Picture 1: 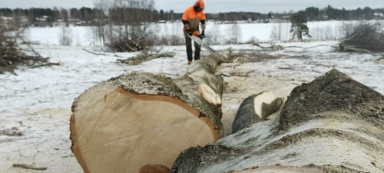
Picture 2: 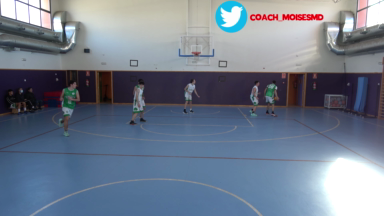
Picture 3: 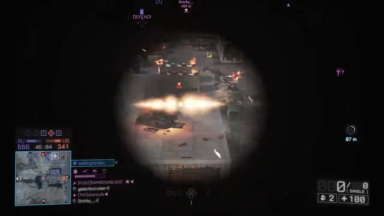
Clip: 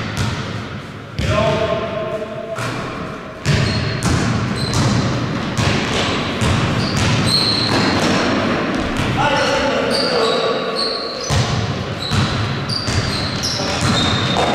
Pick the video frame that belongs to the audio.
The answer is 2